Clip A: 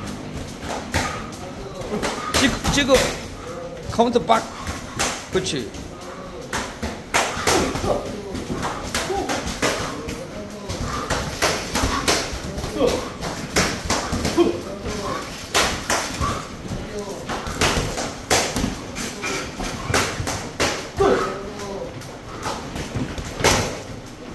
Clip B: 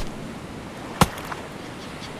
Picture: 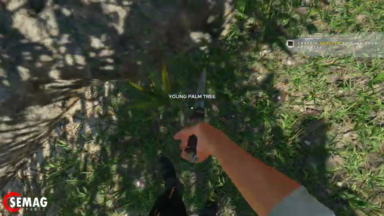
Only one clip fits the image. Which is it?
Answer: B